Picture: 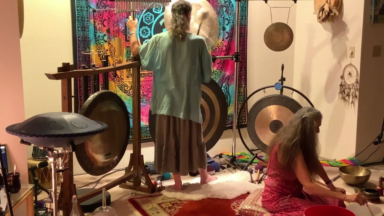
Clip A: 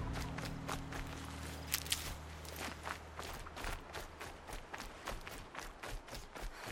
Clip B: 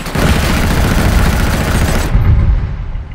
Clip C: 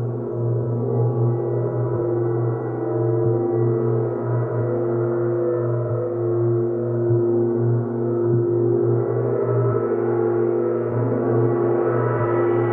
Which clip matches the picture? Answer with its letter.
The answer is C